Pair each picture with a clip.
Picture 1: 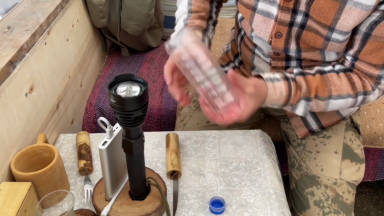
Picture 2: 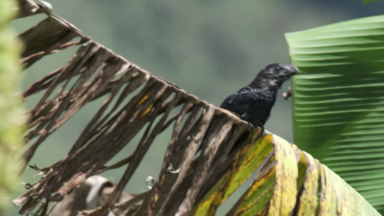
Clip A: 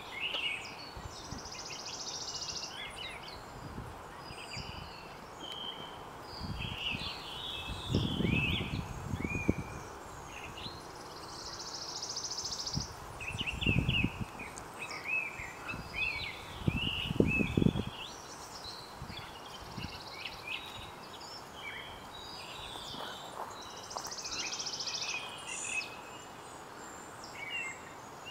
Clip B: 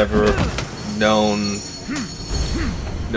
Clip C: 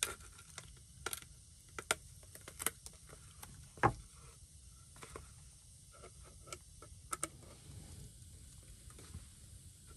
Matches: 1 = C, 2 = A